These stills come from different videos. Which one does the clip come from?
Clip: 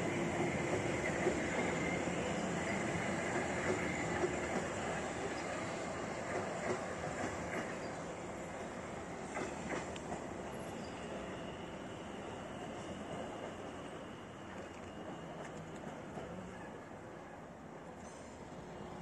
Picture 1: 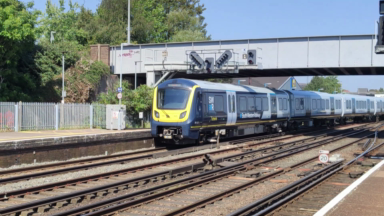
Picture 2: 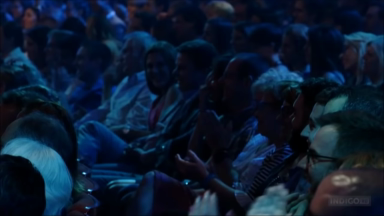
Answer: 1